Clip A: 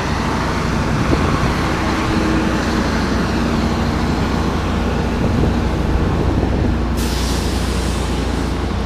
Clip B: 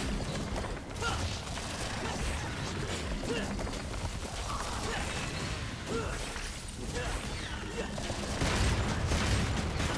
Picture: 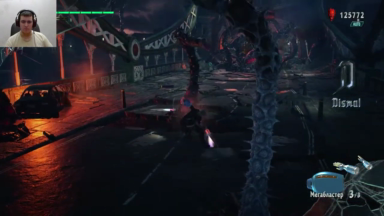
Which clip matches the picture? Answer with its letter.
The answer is B